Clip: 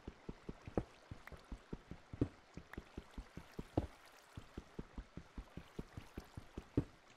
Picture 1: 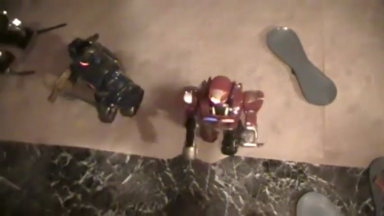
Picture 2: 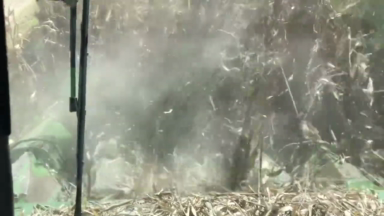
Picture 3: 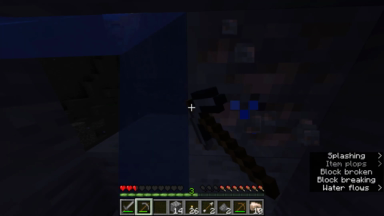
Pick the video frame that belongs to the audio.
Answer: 3